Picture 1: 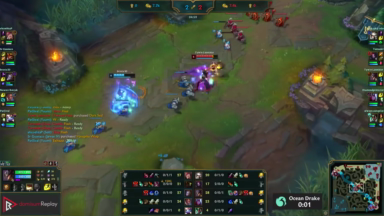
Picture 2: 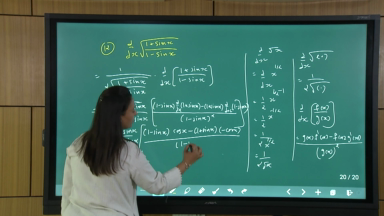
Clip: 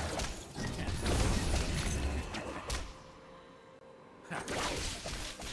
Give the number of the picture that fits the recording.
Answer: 1